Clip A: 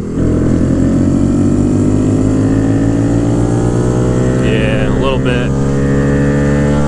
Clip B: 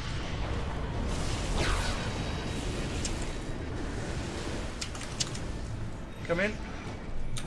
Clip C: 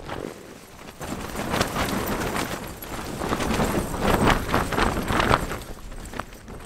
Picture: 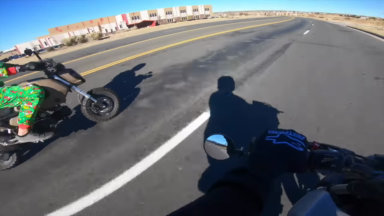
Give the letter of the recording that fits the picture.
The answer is A